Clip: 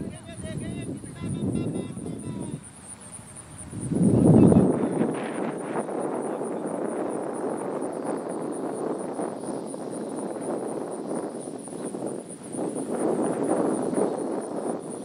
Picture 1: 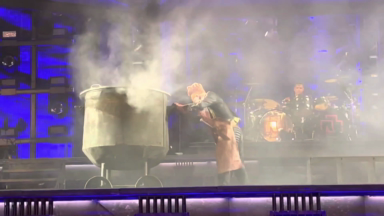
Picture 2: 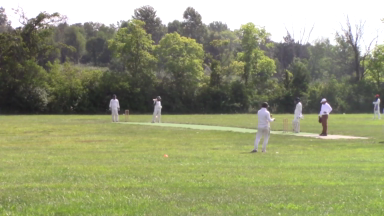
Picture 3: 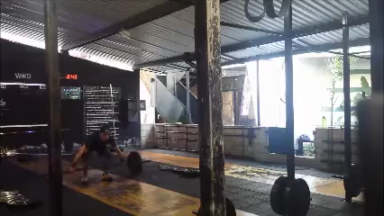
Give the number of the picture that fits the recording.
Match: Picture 2